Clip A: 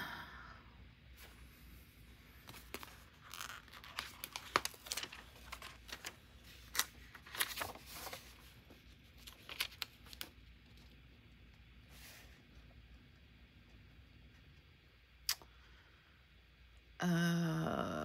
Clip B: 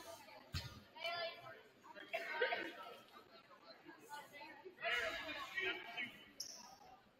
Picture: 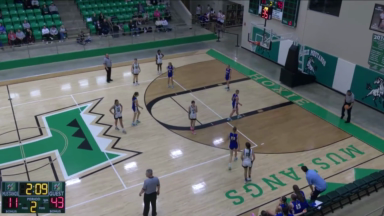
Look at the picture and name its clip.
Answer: B